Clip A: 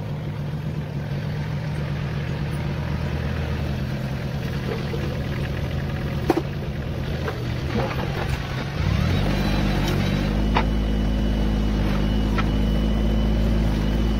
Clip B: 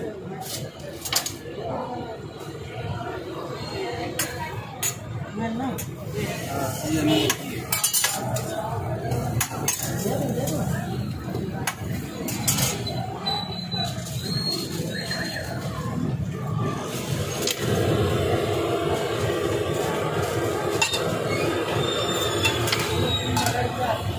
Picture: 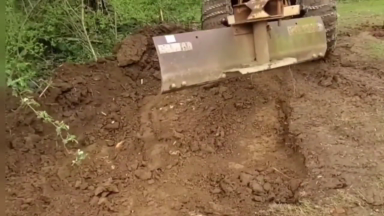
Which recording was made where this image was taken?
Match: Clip A